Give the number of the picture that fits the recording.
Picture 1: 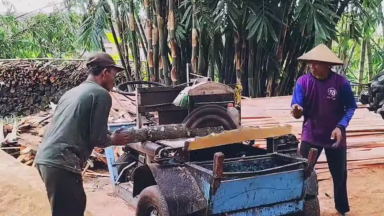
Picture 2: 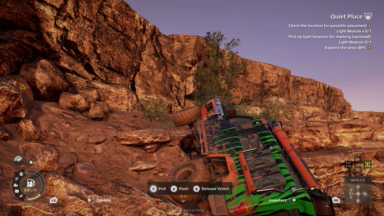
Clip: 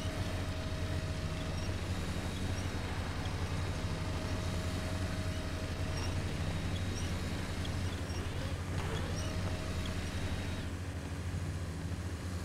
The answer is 2